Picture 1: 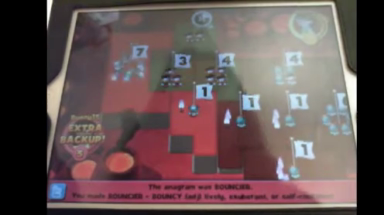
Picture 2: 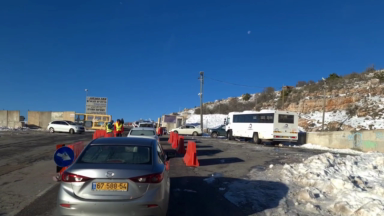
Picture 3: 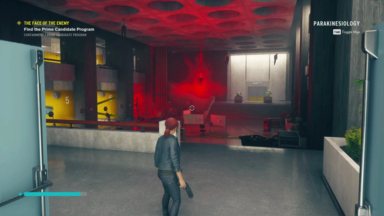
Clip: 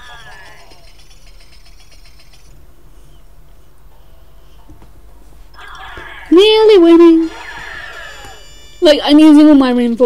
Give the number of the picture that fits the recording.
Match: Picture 1